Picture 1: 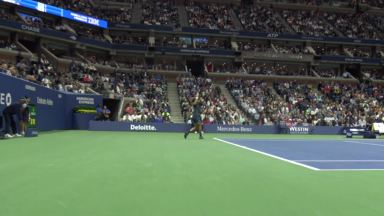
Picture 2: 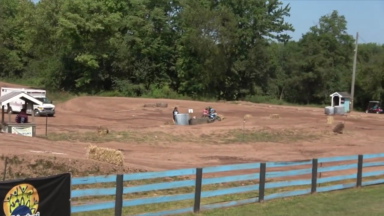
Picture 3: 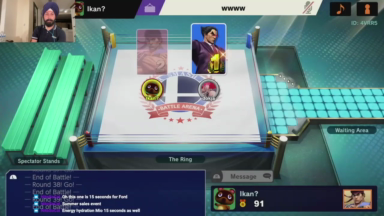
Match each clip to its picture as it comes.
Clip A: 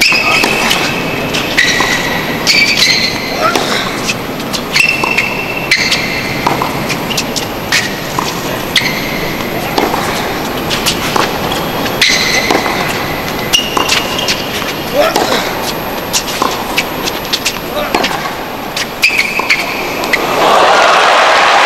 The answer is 1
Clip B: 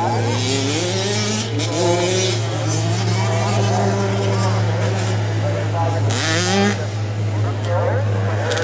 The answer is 2